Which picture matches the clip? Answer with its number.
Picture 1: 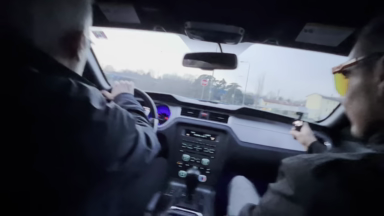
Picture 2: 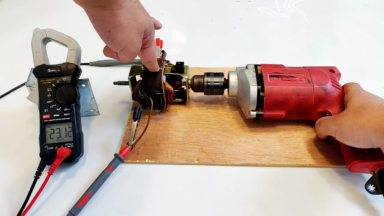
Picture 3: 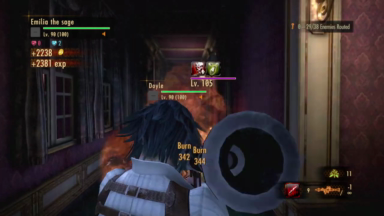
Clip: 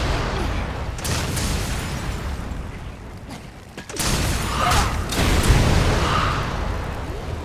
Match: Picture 3